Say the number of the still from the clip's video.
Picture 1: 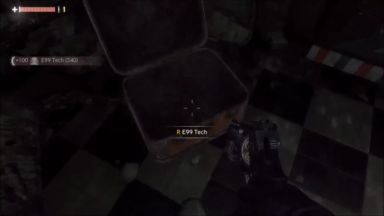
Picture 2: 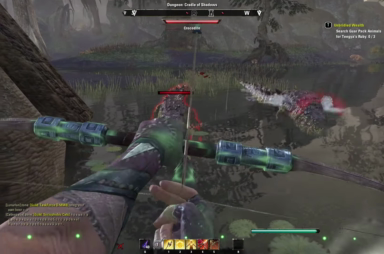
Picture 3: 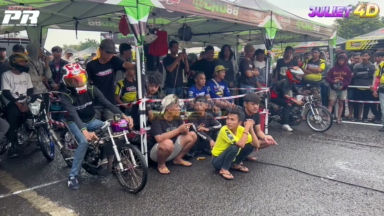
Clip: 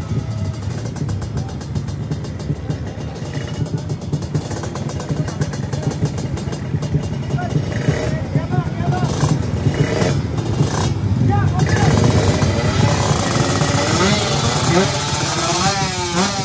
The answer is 3